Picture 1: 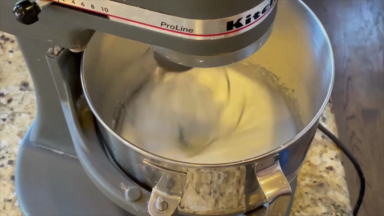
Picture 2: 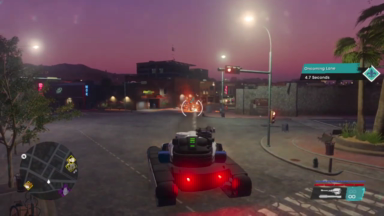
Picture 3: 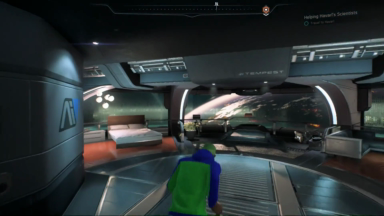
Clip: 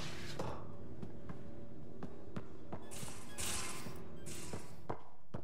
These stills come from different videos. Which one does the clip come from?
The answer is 3